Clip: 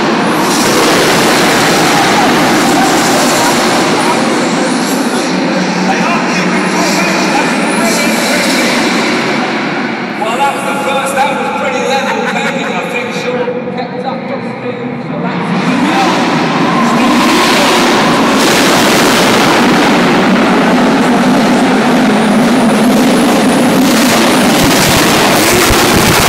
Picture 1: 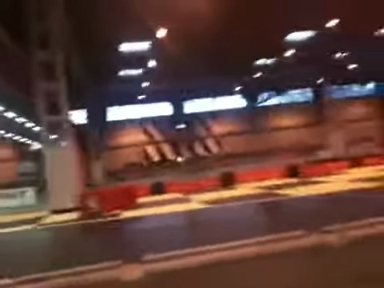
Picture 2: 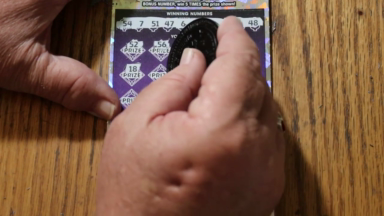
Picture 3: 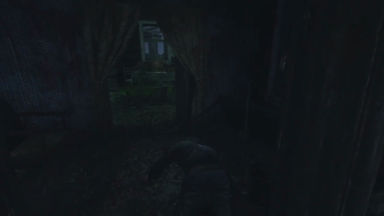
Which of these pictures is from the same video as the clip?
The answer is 1